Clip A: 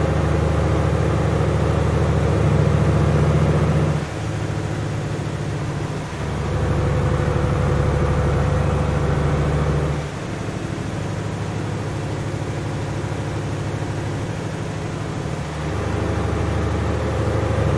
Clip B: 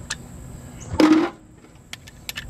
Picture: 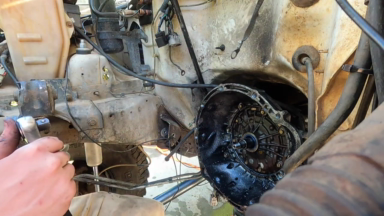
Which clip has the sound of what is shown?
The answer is B